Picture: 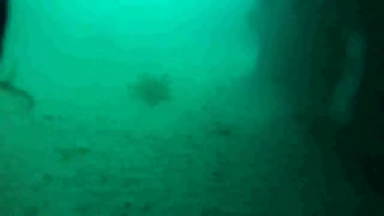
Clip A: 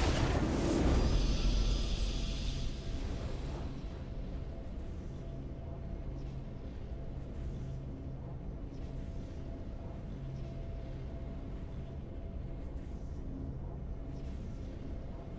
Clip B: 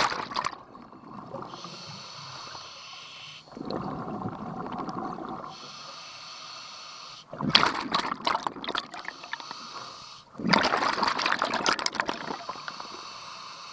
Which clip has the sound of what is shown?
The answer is B